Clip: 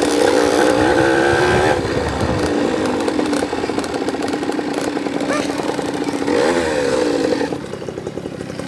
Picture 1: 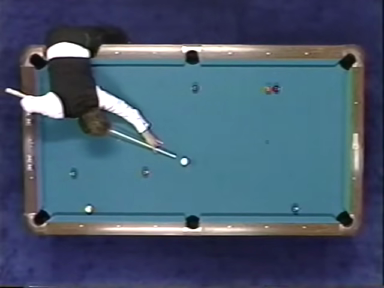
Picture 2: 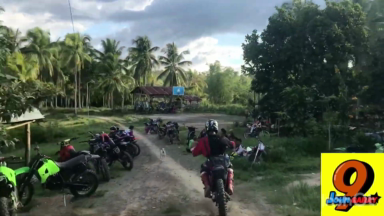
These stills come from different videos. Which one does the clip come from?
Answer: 2